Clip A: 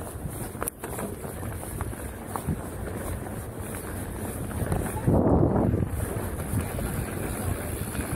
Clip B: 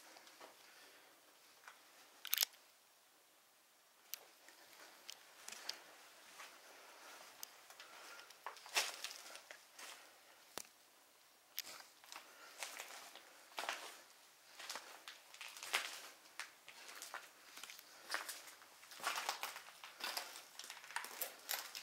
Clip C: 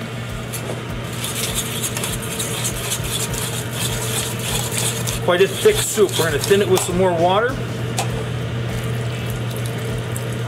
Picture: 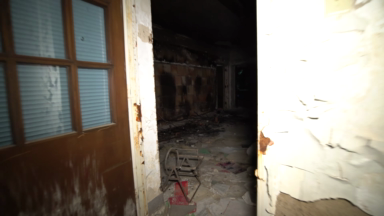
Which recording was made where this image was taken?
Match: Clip B